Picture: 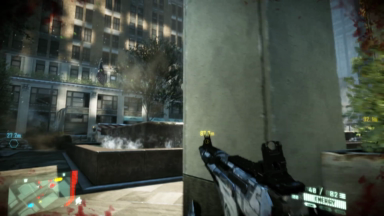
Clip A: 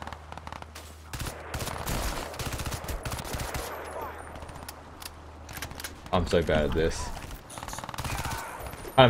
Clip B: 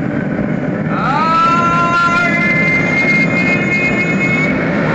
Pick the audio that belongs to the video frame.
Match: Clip A